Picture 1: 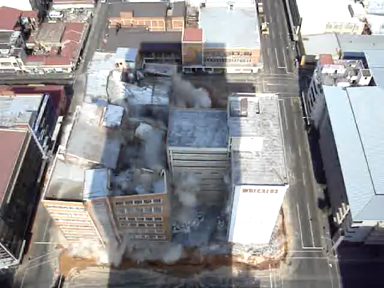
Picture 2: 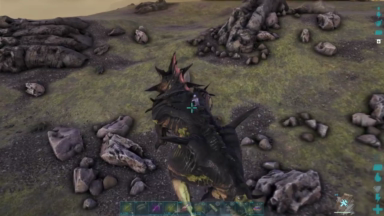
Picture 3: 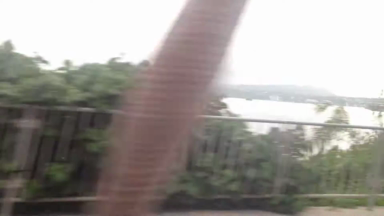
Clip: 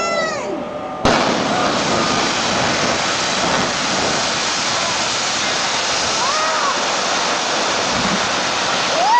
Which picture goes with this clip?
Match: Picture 1